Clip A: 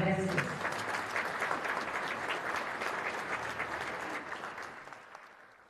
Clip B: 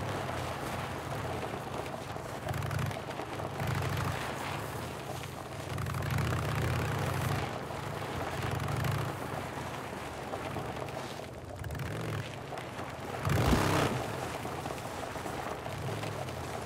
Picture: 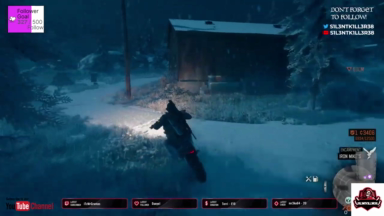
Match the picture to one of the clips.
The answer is B